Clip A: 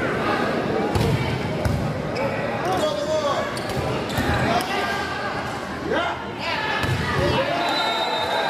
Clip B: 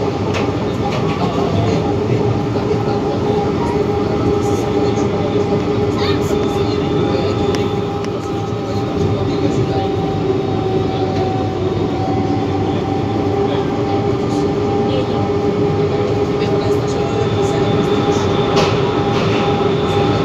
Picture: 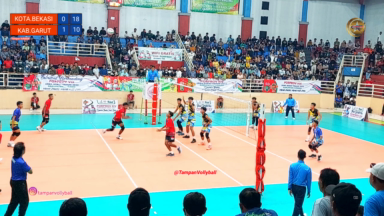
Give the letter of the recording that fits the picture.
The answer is A